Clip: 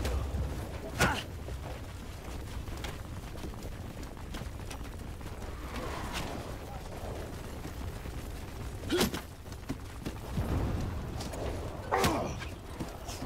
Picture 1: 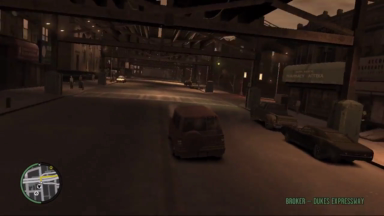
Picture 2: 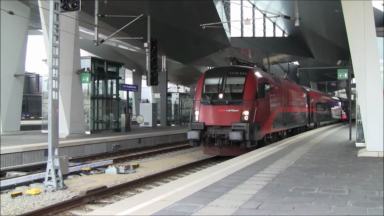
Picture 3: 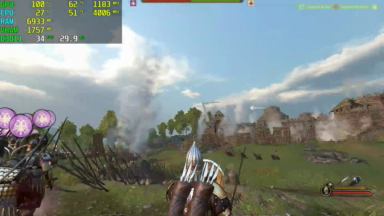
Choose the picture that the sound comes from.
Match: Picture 3